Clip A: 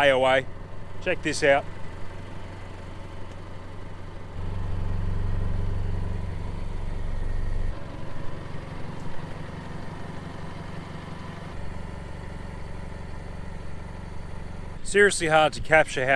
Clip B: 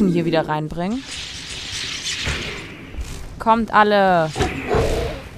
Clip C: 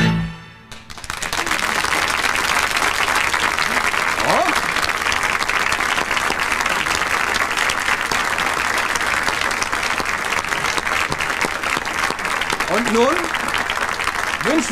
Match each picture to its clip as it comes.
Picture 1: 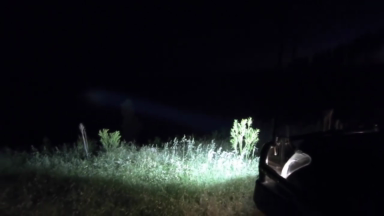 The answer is A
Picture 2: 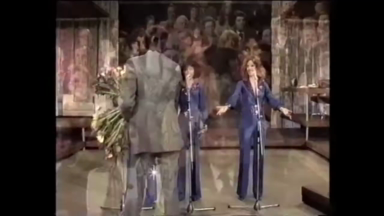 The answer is C